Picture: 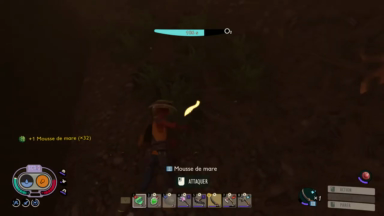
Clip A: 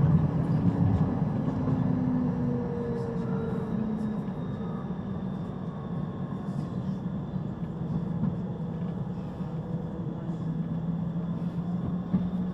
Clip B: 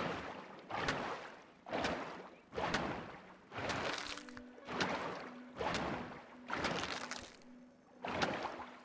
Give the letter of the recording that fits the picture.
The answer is B